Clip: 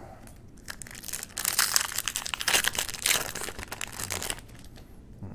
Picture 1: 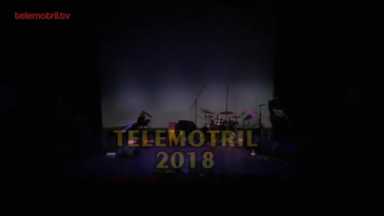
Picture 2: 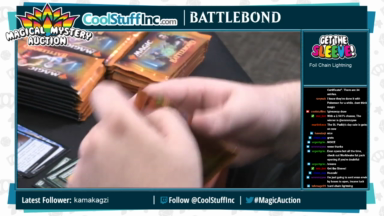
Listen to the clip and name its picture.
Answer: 2